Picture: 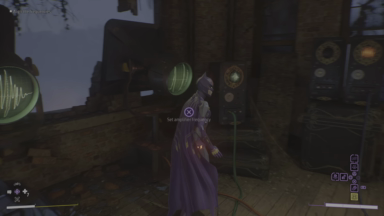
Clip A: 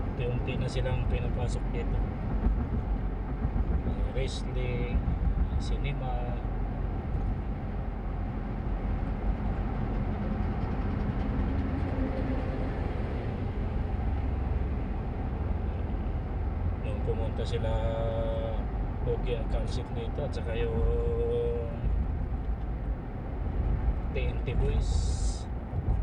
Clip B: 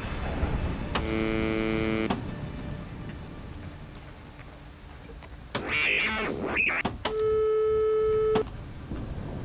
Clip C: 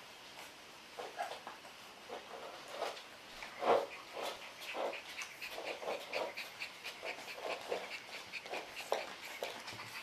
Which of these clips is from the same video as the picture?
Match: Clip B